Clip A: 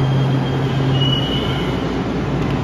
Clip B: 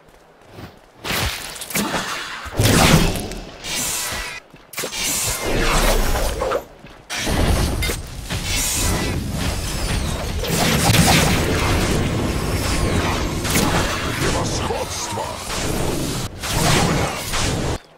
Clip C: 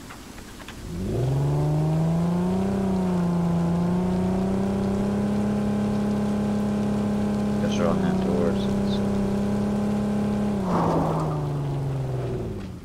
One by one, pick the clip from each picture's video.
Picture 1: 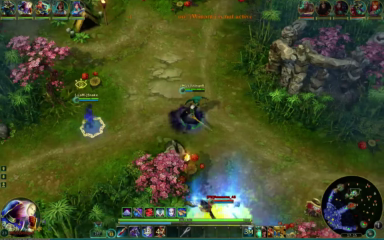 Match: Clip B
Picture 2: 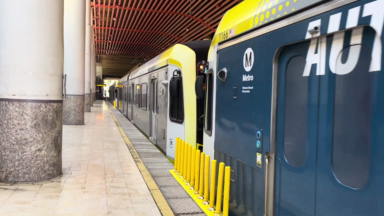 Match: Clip A